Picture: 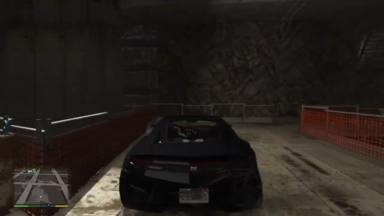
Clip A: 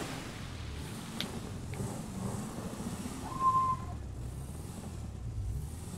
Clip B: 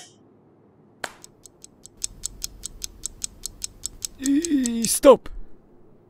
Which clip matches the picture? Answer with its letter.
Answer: A